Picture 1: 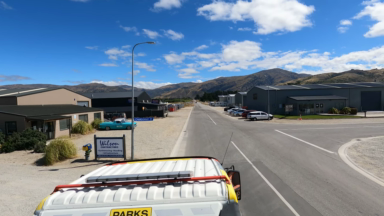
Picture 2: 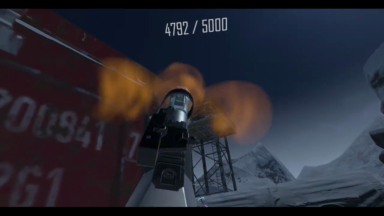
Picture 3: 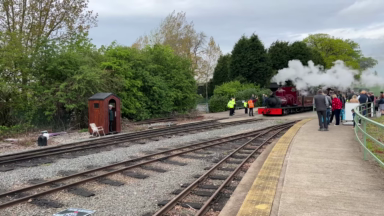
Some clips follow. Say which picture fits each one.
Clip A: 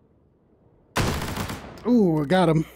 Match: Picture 2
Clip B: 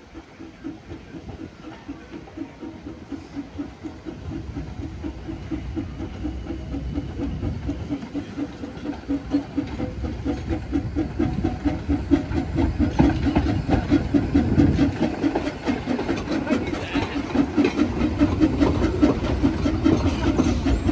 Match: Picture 3